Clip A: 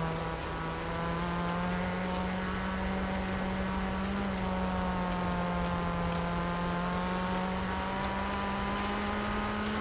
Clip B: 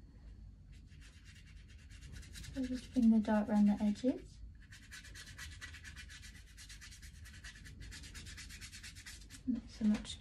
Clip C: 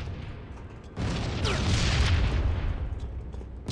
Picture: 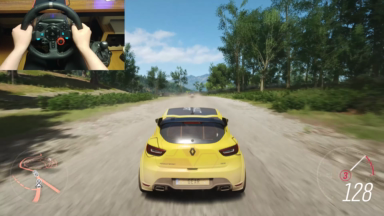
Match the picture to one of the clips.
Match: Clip A